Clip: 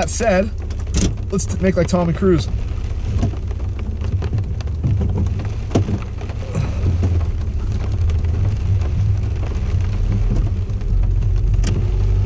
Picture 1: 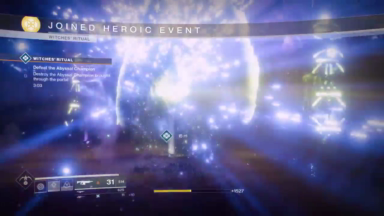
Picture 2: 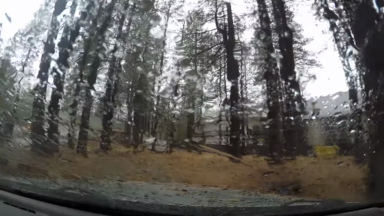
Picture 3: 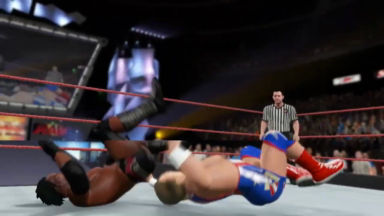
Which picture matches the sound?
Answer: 2